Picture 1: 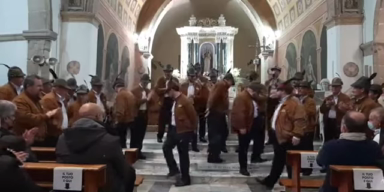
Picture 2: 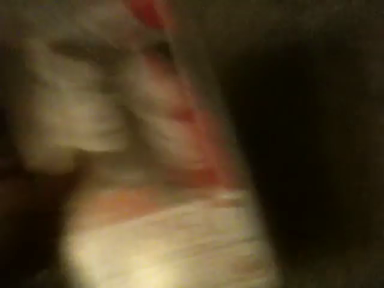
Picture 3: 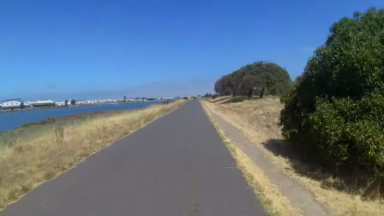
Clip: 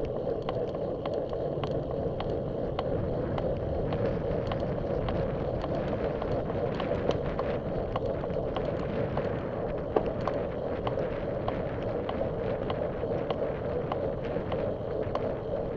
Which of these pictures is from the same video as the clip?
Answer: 3